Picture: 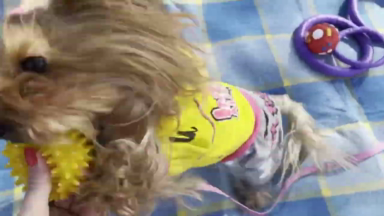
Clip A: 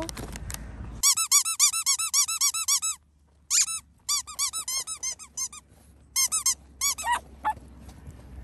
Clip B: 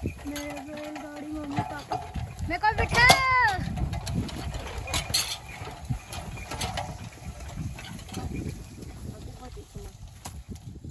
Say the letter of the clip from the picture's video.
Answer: A